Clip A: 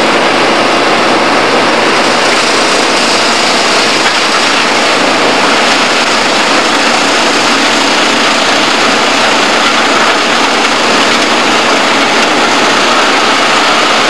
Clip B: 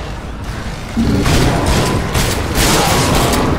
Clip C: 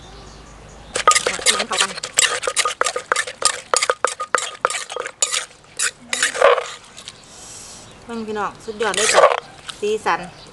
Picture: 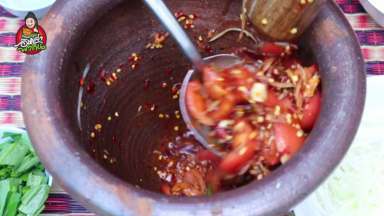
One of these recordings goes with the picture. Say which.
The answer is C